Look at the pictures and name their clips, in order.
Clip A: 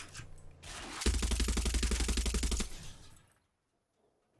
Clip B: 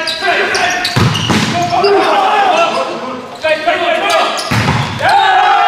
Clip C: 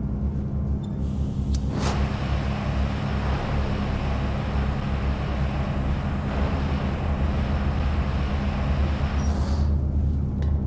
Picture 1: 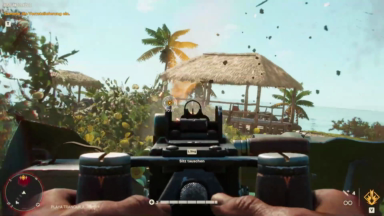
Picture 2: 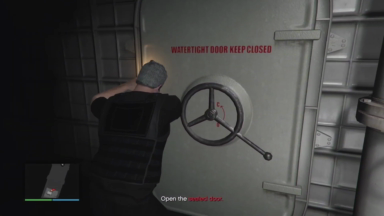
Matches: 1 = A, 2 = C